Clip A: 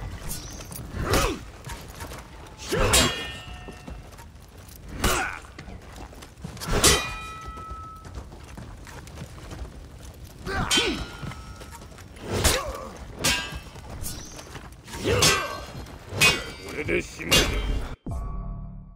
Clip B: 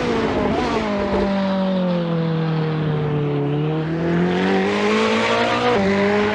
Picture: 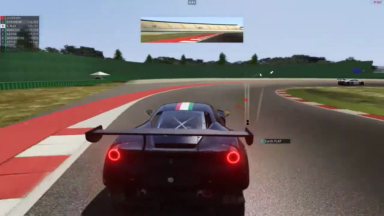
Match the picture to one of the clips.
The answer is B